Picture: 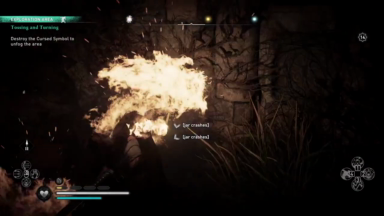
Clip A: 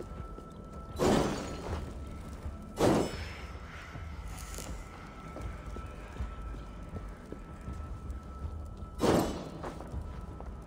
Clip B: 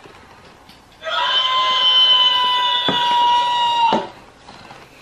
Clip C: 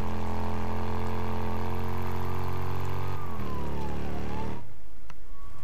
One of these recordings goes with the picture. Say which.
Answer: A